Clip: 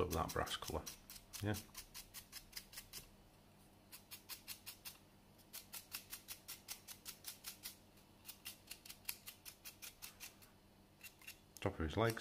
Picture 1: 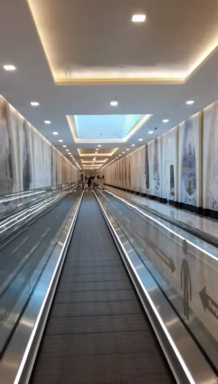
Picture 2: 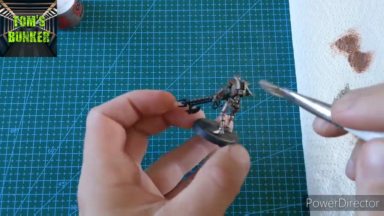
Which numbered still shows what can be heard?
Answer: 2